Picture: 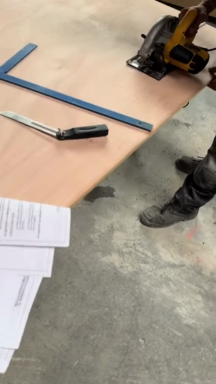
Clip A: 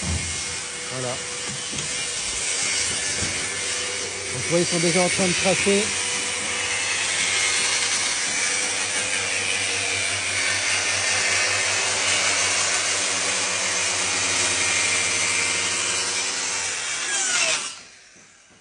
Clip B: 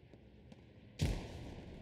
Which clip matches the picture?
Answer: A